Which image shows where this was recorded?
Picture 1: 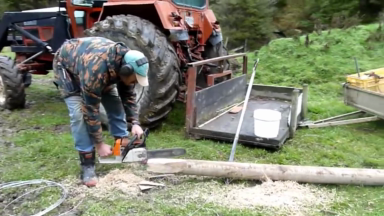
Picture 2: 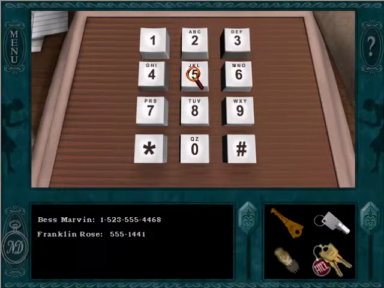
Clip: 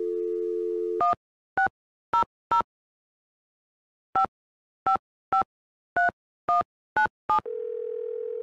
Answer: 2